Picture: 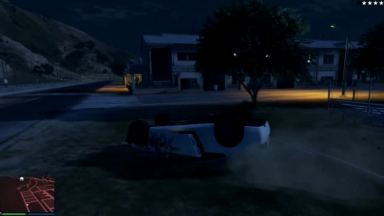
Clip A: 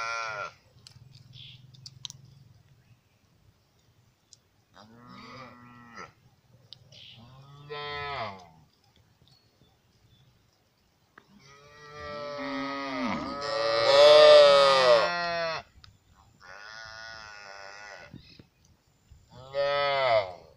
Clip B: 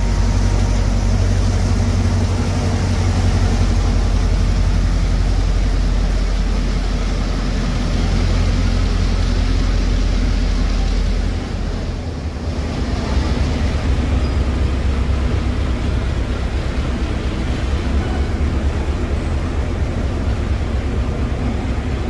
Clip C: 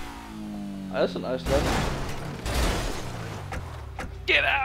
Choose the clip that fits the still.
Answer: C